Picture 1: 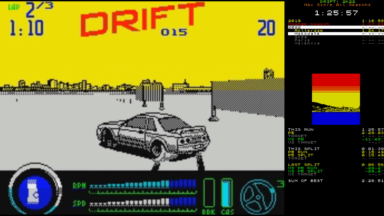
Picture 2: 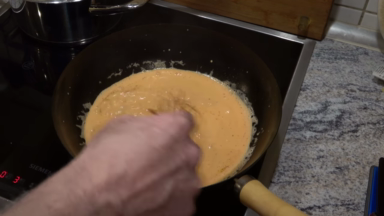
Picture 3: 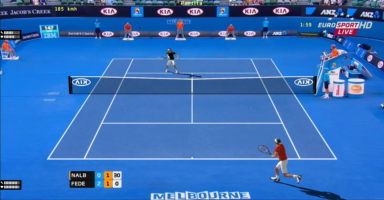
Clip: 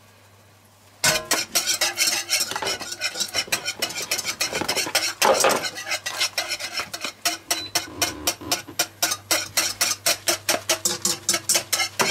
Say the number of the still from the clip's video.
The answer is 2